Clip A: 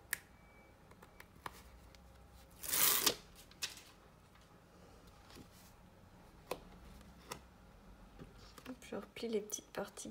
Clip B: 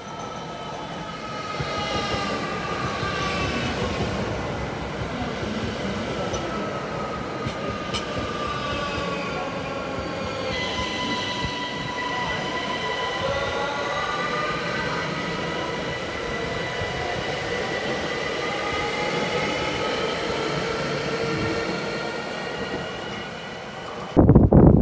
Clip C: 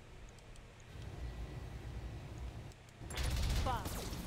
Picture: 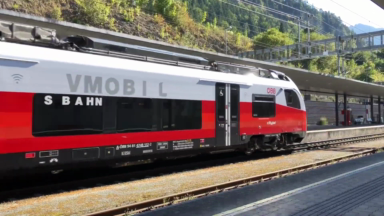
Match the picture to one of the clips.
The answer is B